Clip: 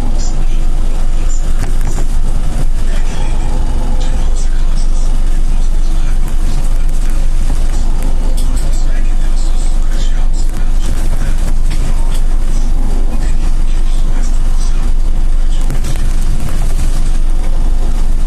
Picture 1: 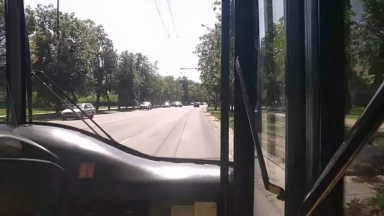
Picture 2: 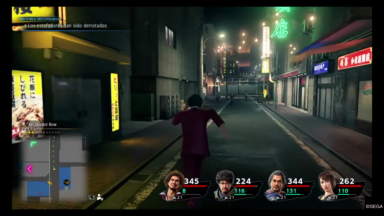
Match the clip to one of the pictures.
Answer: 1